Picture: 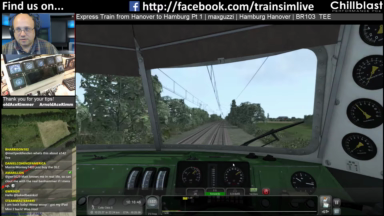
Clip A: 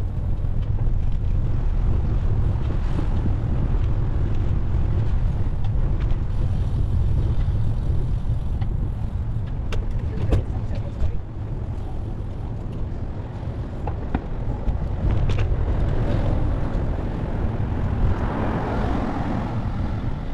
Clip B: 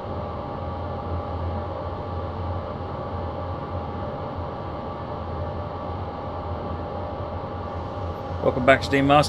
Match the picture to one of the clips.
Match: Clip B